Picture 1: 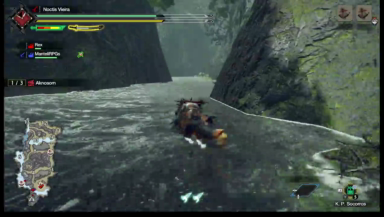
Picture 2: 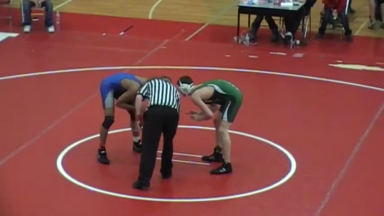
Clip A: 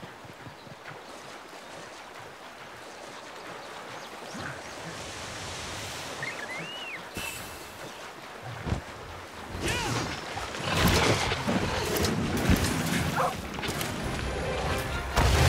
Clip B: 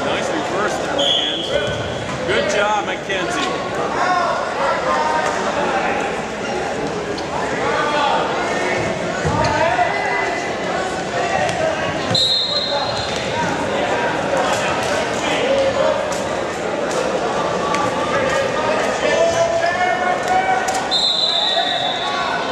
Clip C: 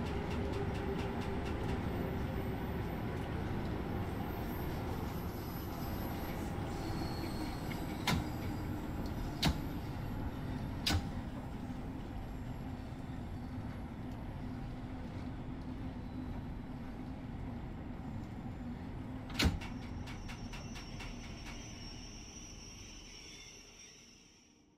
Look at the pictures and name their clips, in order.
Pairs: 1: A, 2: B